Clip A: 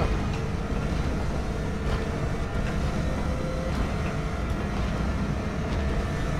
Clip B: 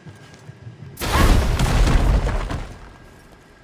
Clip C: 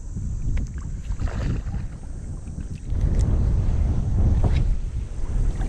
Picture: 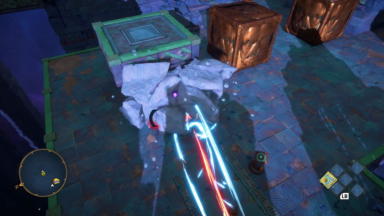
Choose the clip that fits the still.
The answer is B